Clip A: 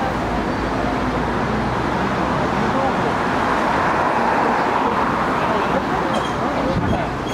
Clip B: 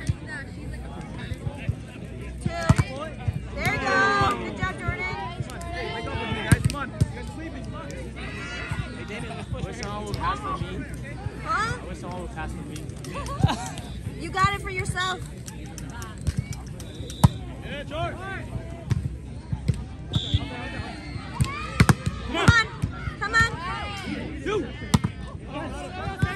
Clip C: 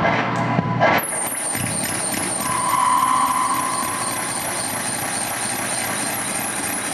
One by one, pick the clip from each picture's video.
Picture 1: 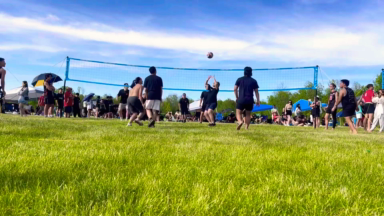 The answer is B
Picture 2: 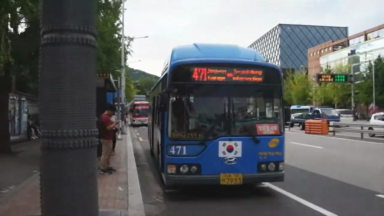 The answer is A